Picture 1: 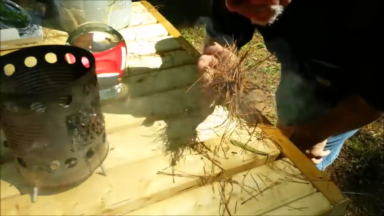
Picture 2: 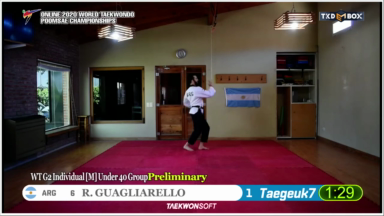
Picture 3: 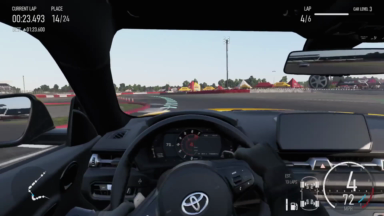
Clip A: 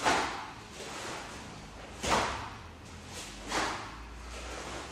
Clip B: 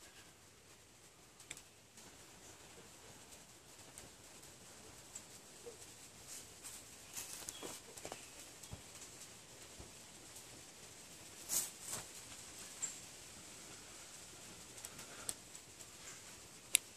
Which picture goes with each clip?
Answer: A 2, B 1